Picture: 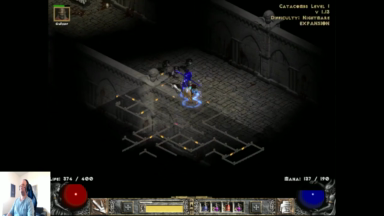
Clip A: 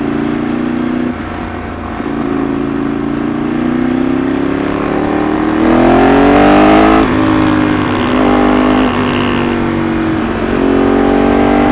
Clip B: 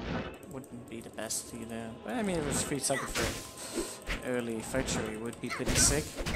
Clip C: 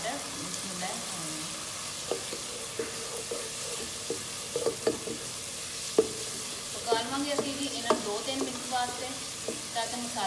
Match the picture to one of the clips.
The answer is B